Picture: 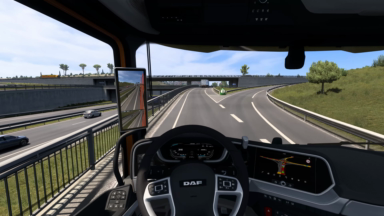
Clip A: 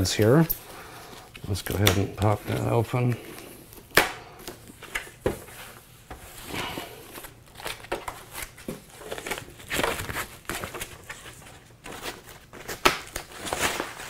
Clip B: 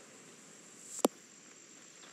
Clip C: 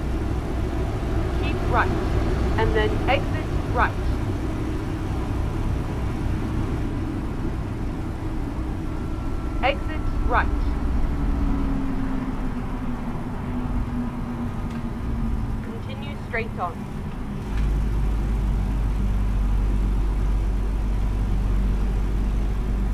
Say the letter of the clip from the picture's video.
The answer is C